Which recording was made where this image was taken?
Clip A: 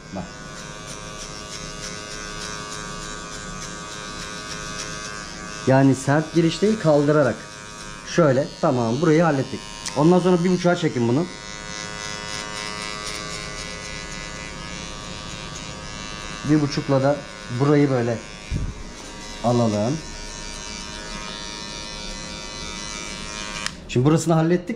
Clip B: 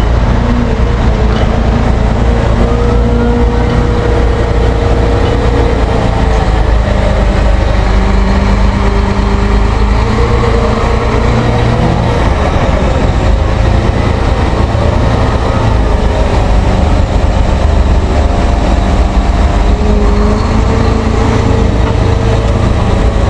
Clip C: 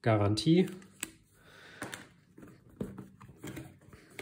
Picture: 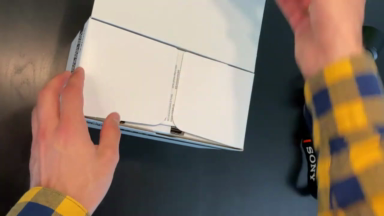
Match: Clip C